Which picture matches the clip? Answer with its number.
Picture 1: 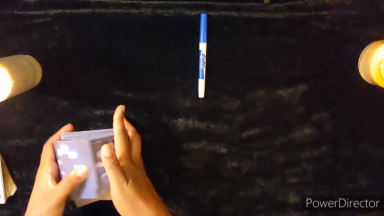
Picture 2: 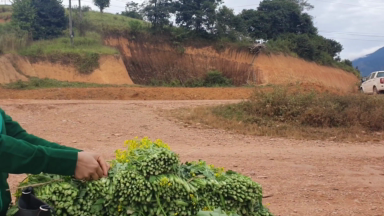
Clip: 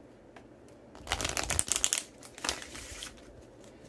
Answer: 1